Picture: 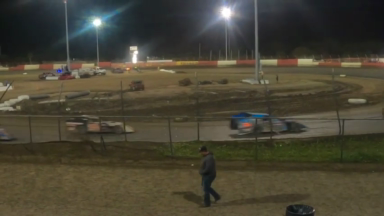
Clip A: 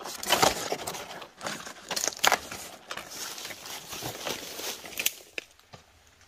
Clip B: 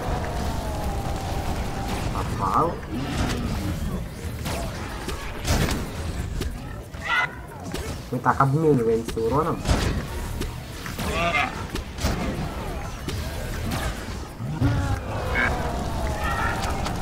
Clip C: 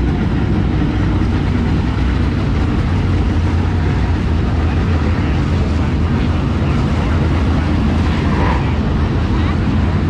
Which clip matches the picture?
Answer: C